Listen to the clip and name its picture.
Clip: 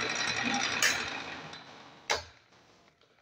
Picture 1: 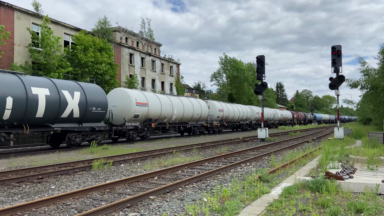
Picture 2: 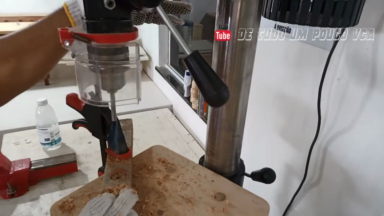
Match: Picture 2